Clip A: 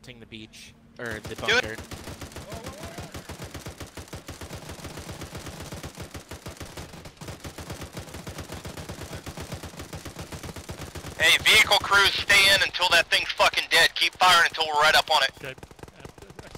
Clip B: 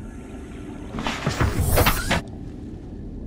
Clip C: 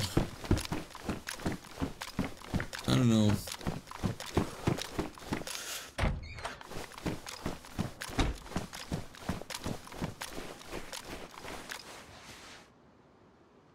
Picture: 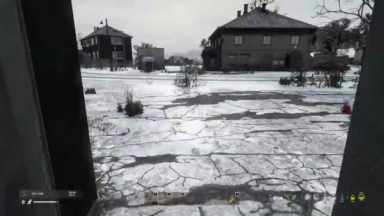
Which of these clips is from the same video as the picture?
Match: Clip C